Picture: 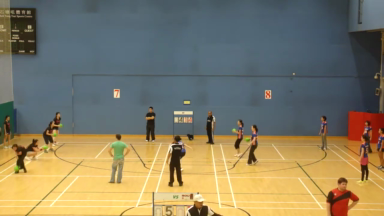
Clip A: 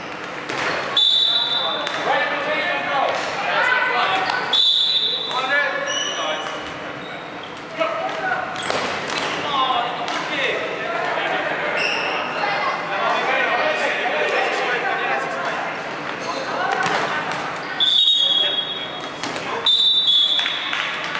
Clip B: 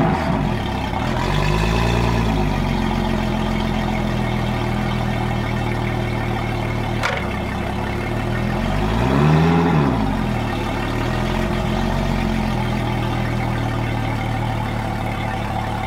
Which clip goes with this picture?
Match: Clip A